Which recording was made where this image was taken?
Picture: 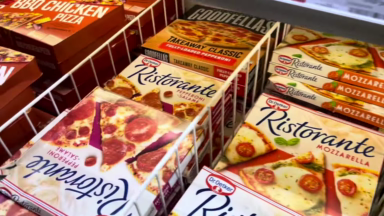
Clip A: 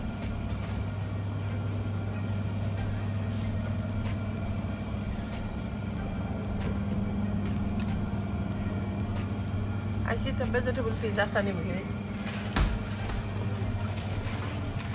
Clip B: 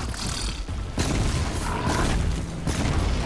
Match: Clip A